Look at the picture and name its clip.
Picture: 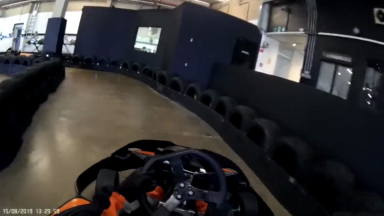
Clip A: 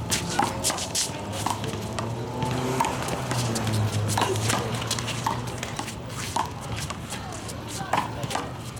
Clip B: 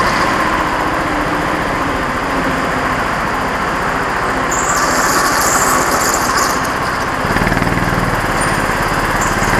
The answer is B